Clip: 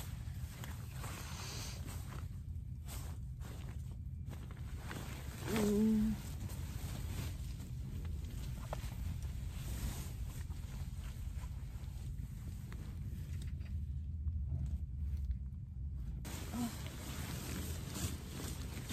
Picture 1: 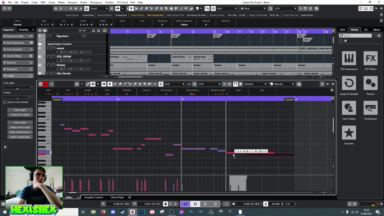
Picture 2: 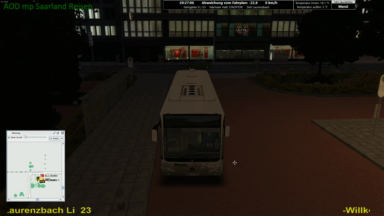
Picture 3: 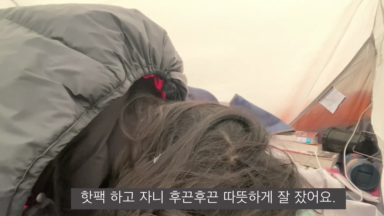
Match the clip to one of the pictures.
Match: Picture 3